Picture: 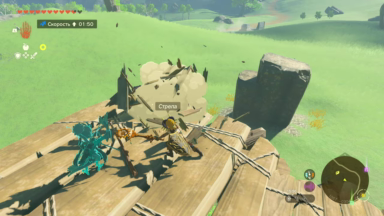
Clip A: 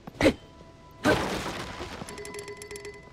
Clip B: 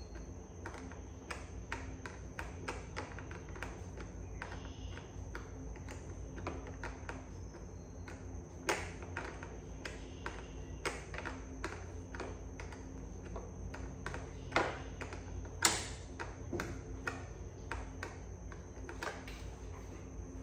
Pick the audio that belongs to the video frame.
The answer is A